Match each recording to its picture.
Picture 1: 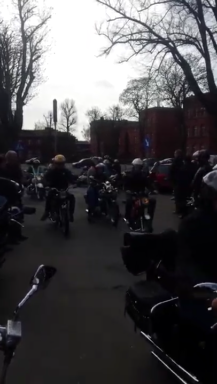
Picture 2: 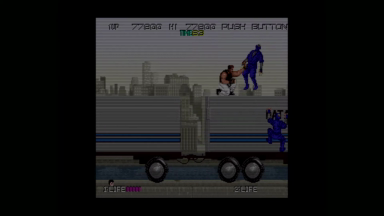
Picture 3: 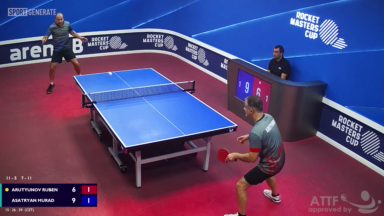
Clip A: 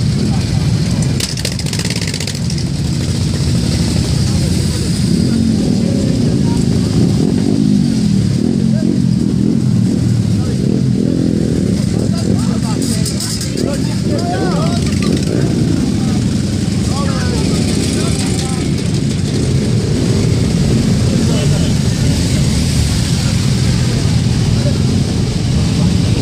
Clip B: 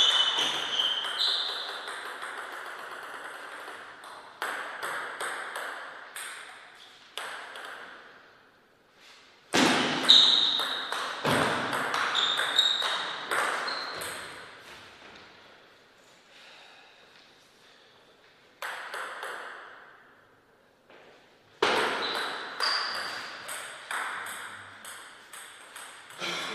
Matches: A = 1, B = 3